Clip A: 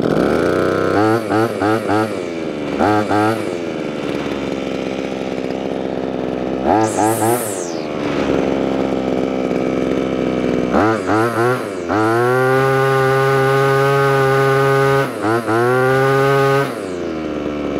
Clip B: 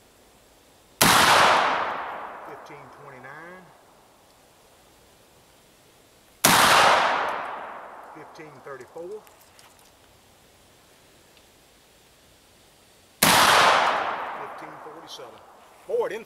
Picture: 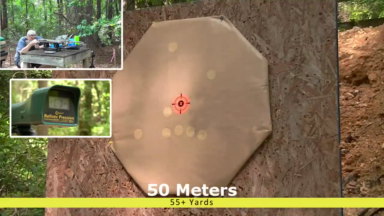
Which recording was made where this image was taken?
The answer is B